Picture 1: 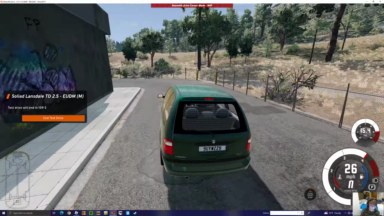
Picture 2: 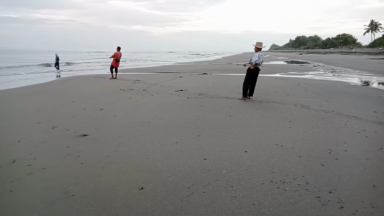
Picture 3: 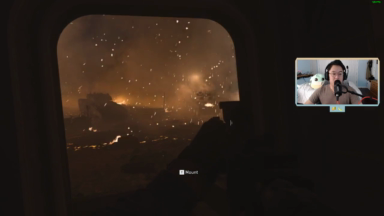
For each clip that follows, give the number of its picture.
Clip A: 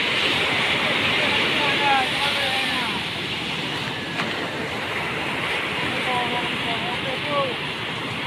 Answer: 2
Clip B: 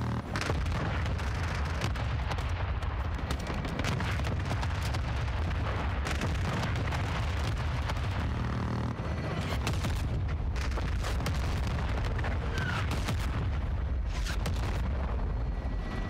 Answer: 3